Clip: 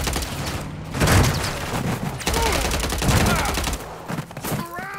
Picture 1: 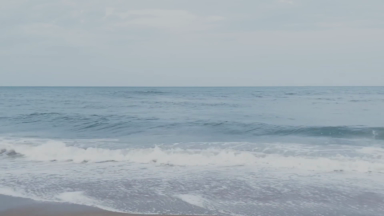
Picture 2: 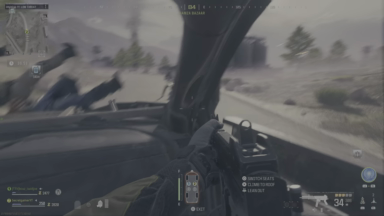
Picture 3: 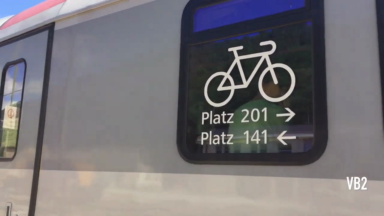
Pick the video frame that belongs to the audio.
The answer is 2